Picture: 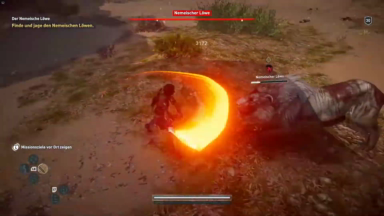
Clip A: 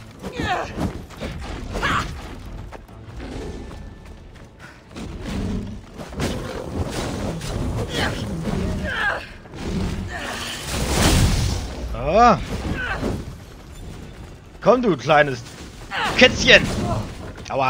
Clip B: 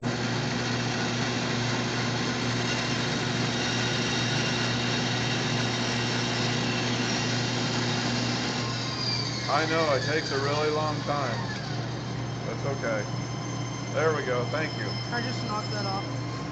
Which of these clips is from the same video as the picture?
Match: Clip A